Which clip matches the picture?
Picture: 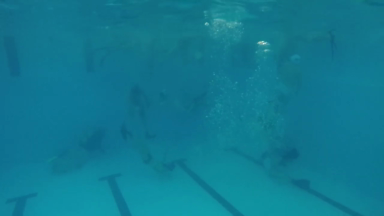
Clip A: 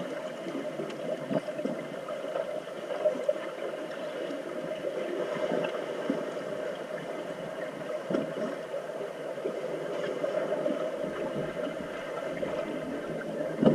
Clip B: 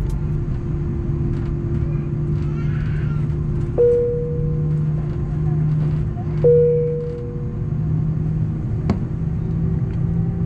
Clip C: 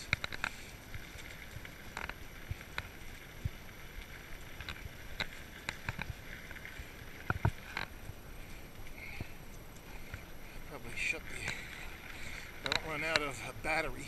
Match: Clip A